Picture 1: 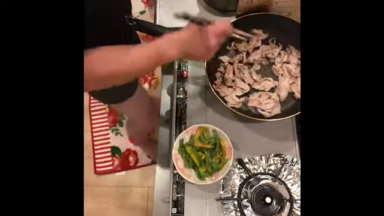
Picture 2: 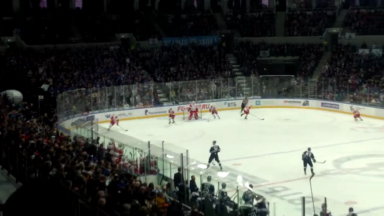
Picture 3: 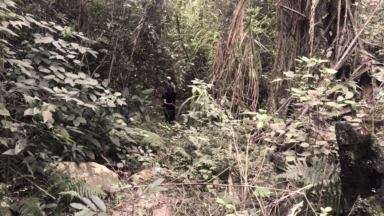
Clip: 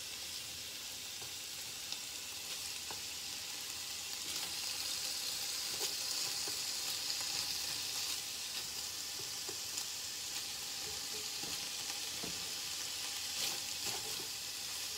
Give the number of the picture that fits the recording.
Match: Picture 1